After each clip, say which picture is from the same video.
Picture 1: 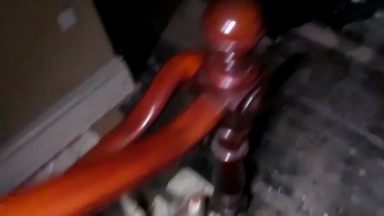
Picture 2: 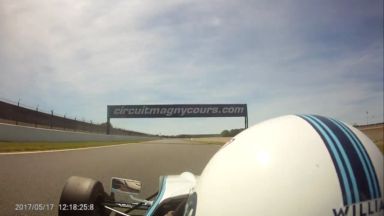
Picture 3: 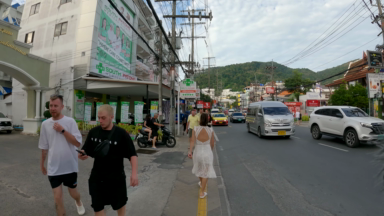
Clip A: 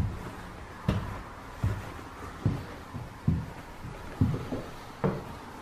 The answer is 1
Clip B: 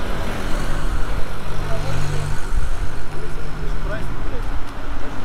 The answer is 3